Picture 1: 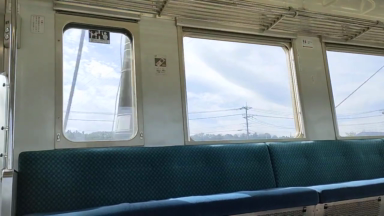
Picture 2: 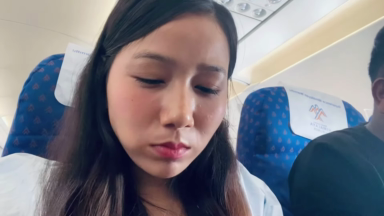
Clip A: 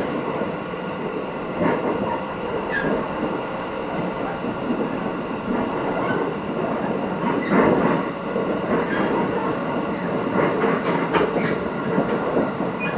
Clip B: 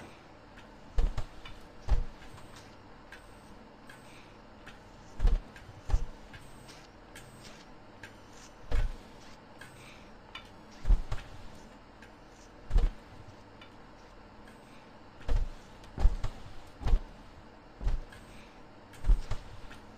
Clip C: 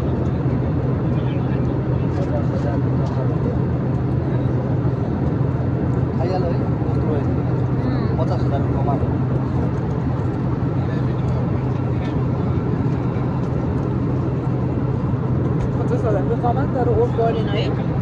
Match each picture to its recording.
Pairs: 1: A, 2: C